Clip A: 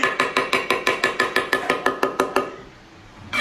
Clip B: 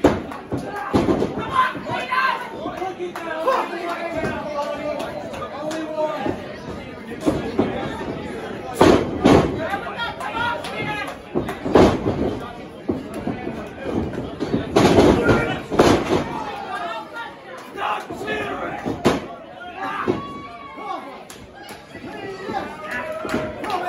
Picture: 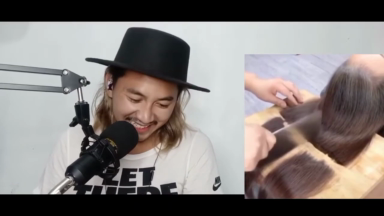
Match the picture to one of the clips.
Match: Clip A